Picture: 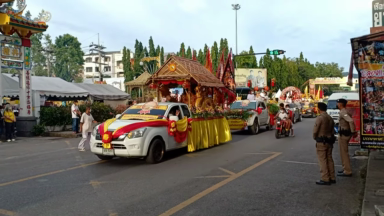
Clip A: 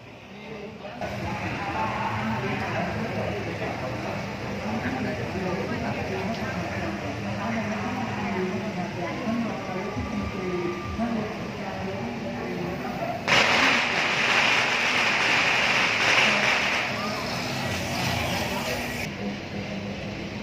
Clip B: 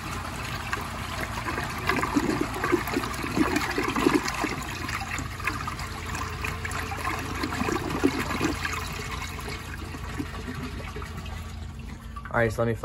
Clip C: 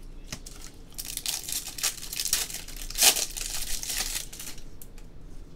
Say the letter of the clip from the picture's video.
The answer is A